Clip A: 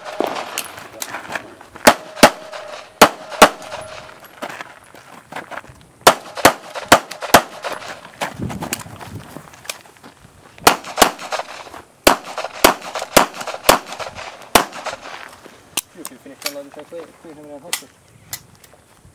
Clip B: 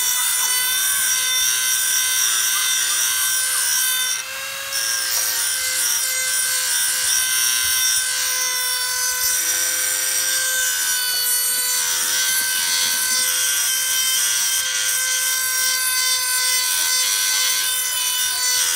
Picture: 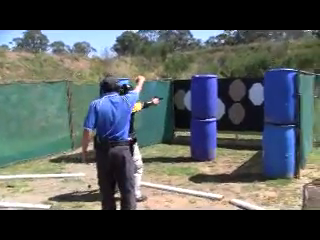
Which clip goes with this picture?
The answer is A